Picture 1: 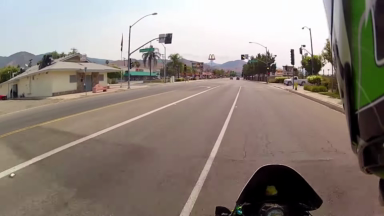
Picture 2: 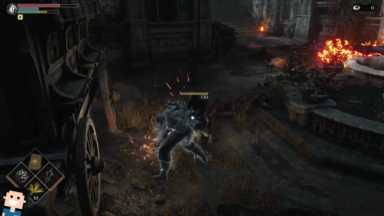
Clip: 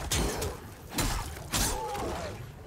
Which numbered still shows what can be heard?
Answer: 2